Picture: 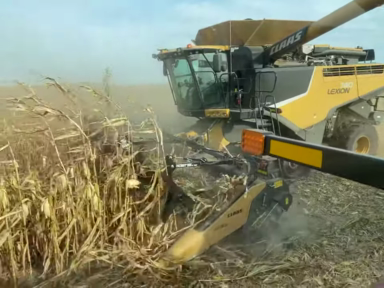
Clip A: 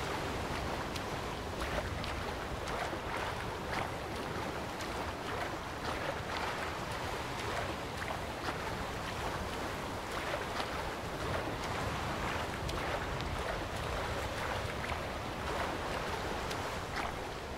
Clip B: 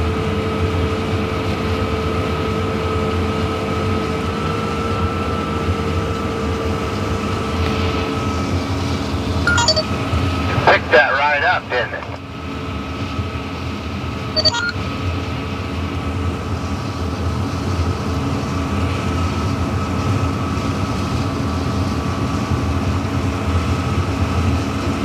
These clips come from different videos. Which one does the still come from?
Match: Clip B